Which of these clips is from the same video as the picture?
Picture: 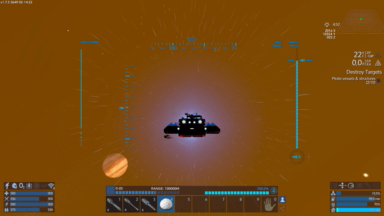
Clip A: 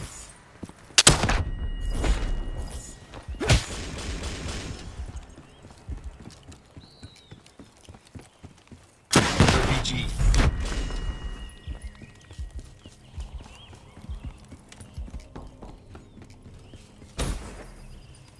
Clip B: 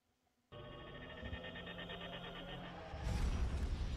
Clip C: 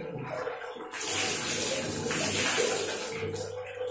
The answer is B